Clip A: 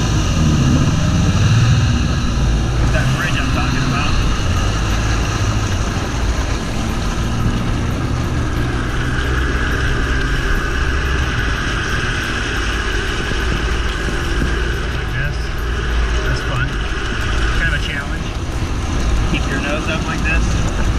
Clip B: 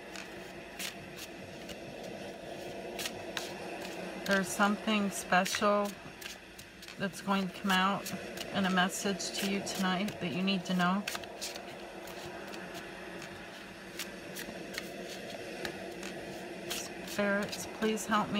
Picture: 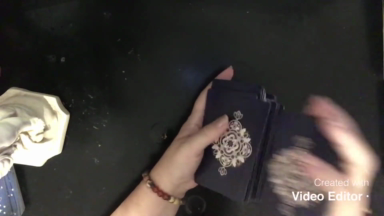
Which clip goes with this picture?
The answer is B